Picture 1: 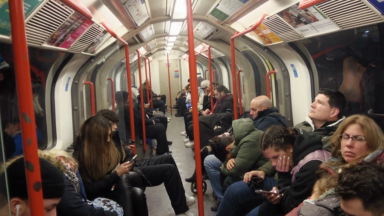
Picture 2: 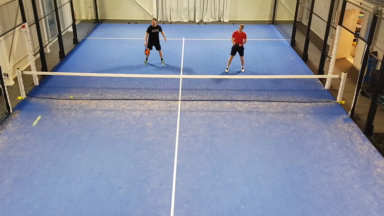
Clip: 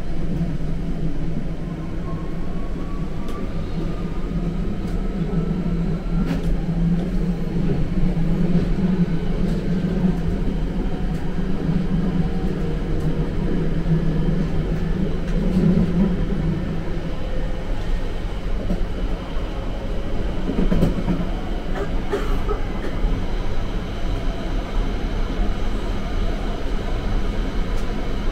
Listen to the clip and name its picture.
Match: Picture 1